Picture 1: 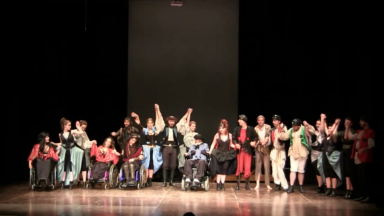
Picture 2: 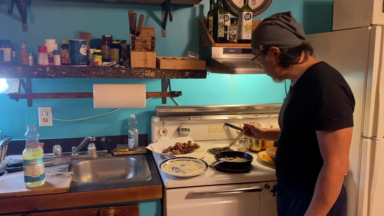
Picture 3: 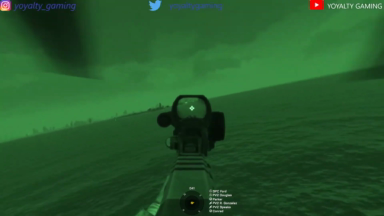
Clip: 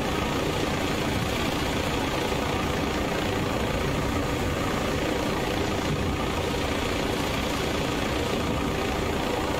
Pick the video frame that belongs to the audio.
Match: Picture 3